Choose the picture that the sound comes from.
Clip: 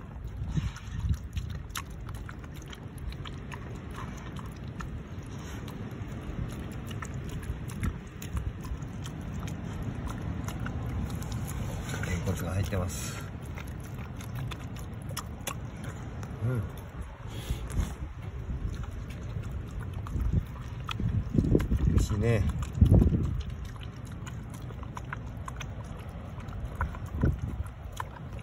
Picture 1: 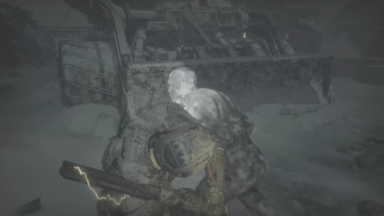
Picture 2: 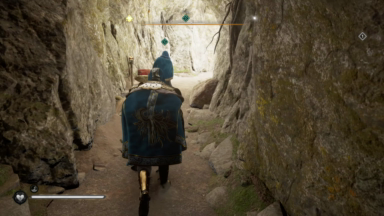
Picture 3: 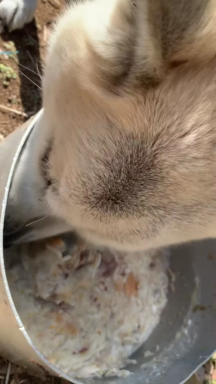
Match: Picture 3